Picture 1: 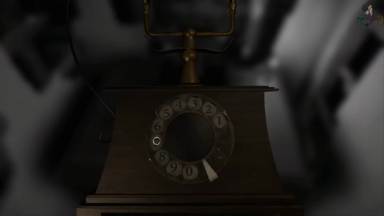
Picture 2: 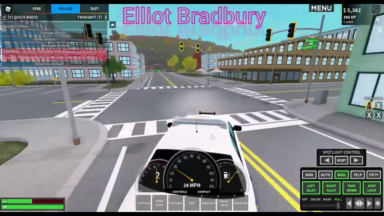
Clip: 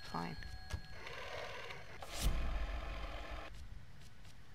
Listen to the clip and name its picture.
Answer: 1